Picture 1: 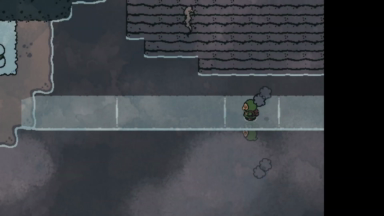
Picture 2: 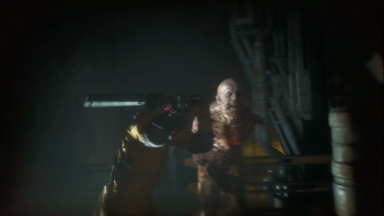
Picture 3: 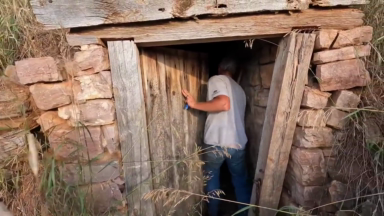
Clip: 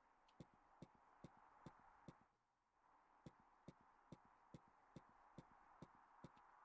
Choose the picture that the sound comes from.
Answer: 1